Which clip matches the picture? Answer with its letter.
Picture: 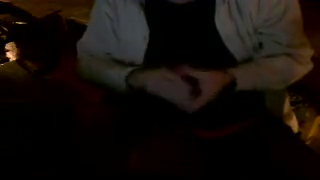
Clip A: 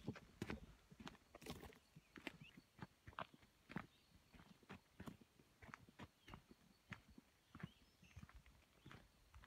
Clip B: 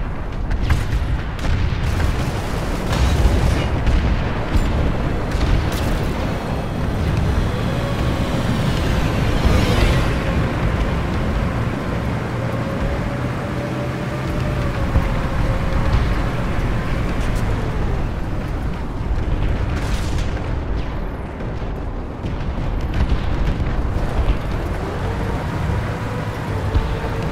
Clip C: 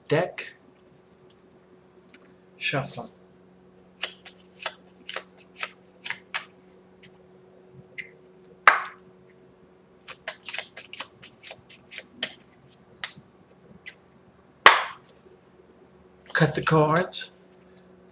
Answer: C